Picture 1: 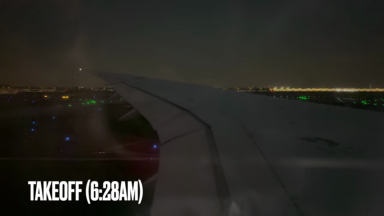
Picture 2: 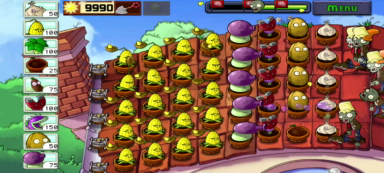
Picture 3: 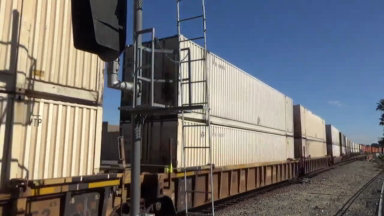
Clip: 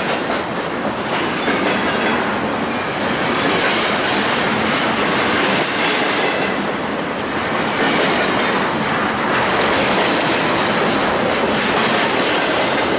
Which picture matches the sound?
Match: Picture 3